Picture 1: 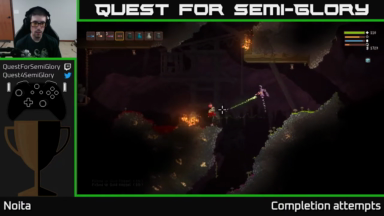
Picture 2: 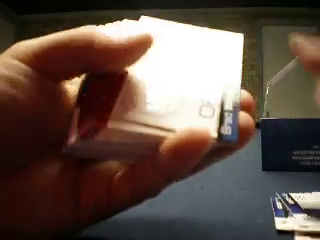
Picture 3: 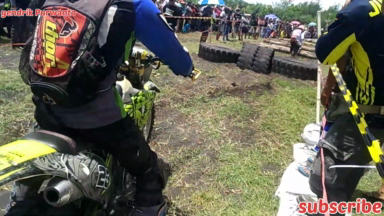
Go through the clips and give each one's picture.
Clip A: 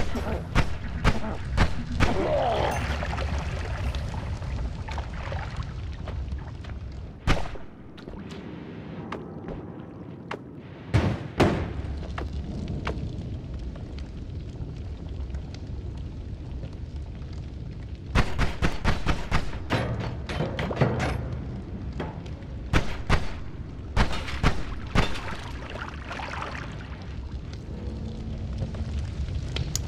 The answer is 1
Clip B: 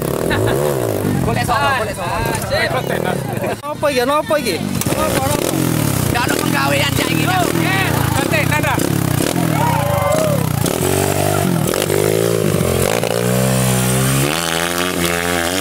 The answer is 3